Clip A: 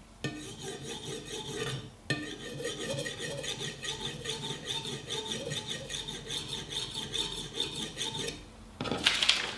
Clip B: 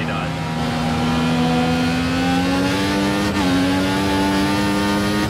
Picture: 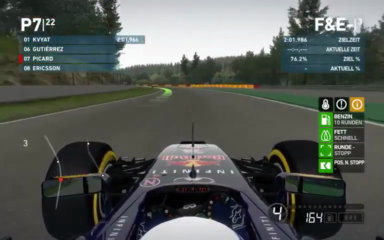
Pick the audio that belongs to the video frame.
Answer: B